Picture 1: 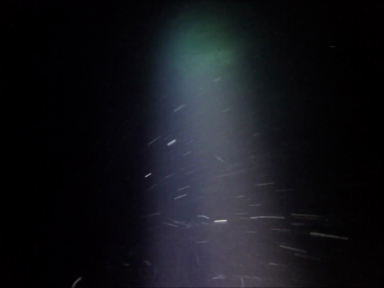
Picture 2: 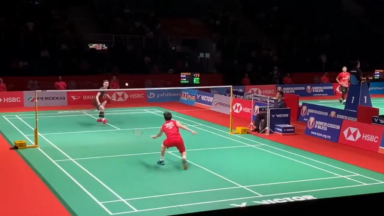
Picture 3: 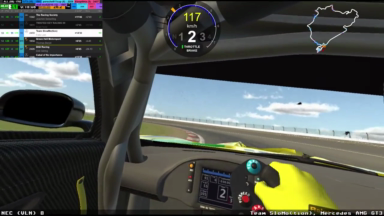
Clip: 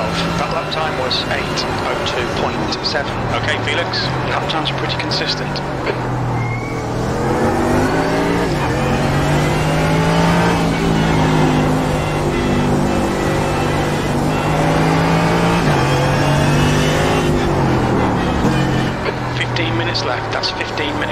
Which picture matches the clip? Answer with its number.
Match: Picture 3